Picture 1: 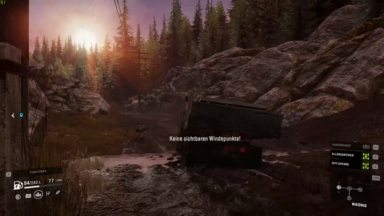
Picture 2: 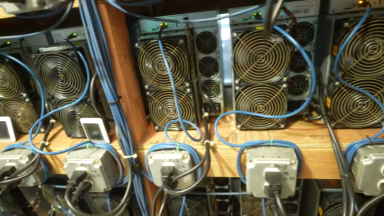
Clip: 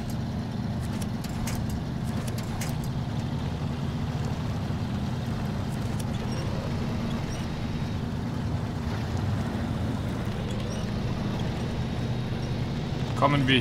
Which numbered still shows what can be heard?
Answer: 1